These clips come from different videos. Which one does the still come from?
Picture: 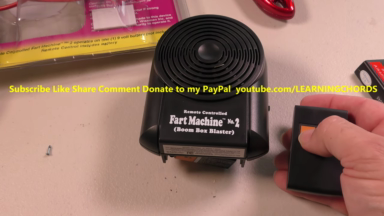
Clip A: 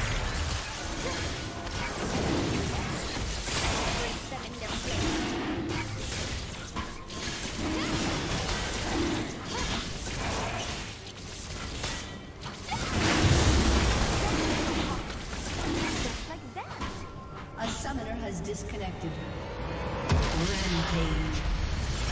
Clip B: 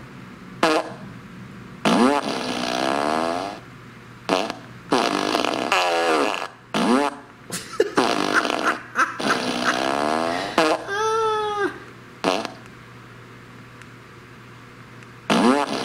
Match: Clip B